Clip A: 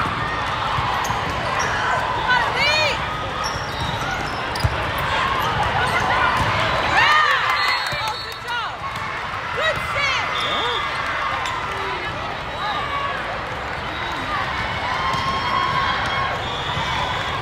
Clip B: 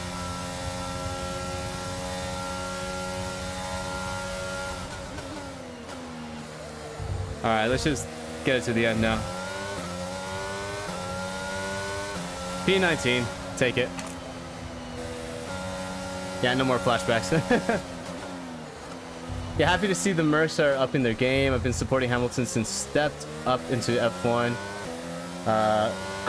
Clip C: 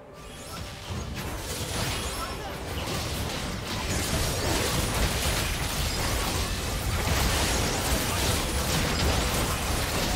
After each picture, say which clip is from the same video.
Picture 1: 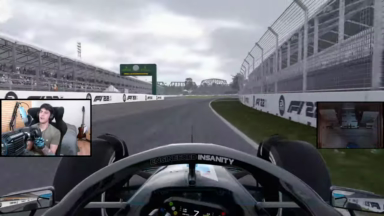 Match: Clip B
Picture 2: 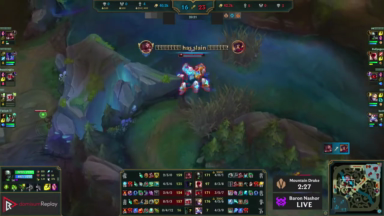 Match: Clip C